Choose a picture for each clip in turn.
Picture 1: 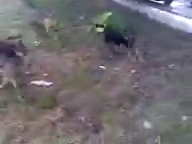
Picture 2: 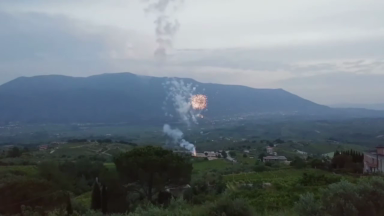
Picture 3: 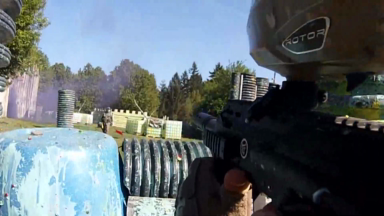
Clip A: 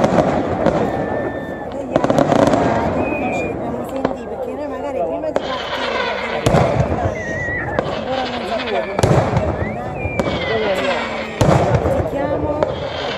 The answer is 2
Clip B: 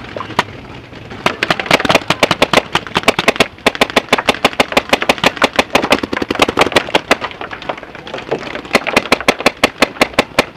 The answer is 3